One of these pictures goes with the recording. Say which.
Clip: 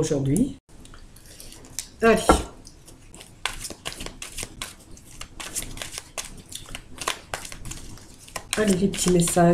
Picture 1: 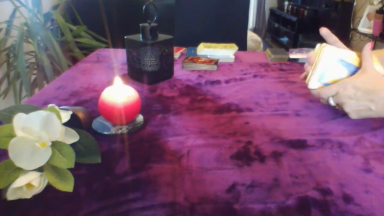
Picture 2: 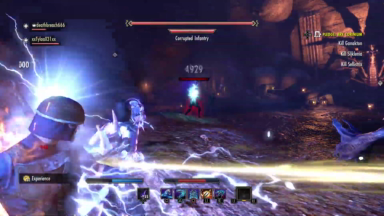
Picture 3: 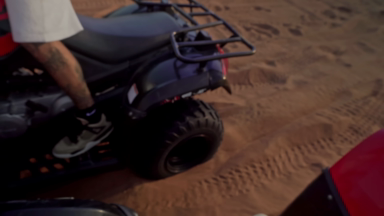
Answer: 1